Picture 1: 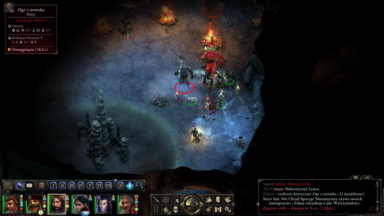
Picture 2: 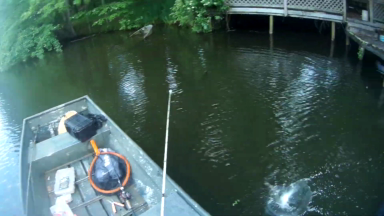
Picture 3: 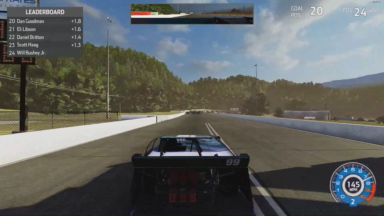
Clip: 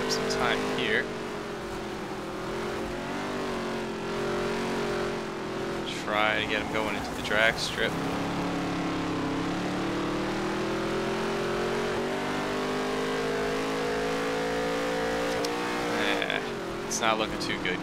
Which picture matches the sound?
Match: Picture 3